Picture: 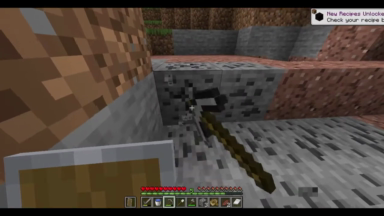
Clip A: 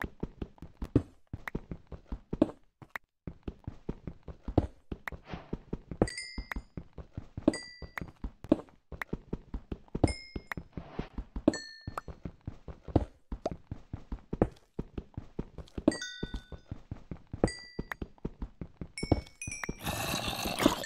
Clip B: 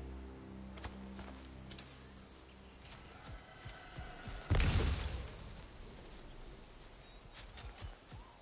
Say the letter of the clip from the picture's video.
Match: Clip A